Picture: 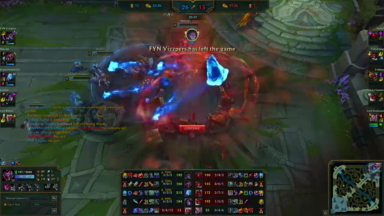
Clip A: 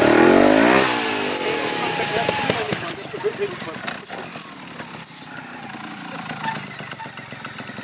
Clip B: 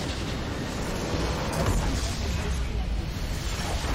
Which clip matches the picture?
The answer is B